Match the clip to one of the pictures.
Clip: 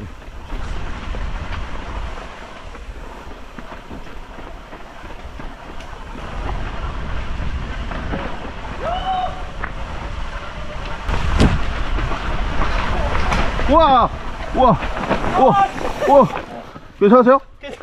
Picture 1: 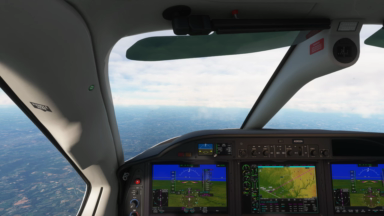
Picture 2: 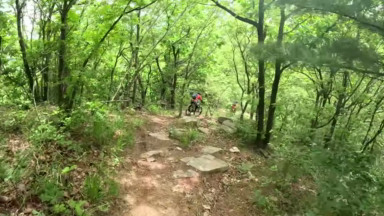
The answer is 2